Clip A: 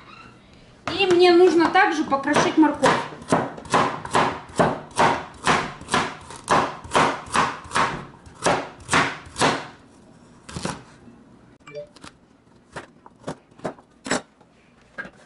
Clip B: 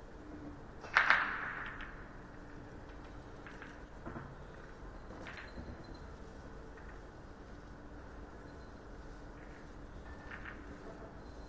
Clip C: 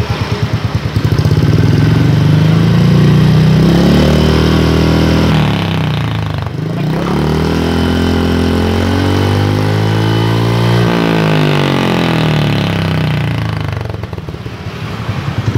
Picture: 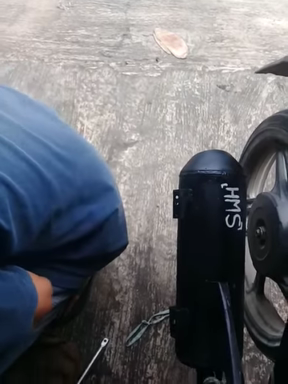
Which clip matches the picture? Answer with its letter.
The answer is C